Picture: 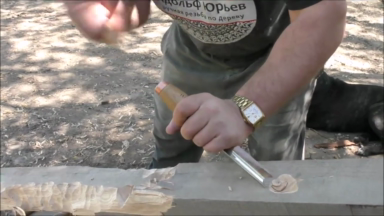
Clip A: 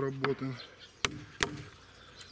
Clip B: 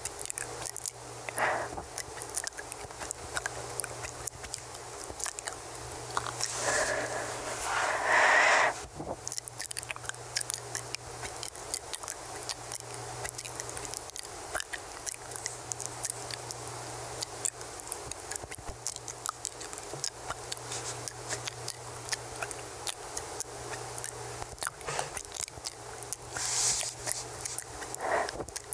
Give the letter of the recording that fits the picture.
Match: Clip A